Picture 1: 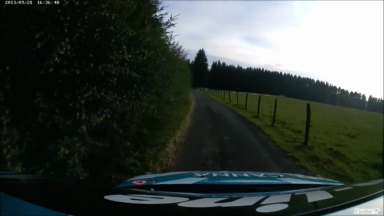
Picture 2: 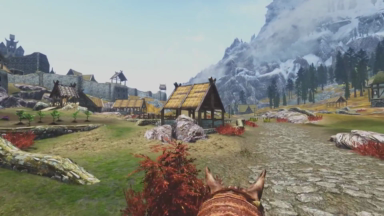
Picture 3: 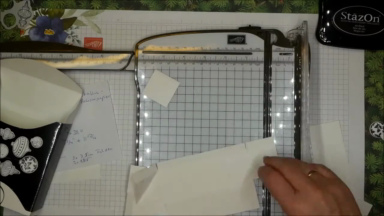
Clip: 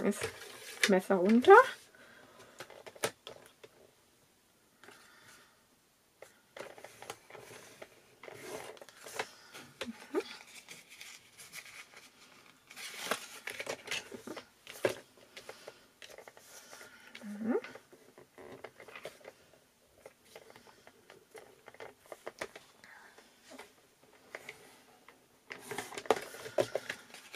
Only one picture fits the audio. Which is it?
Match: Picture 3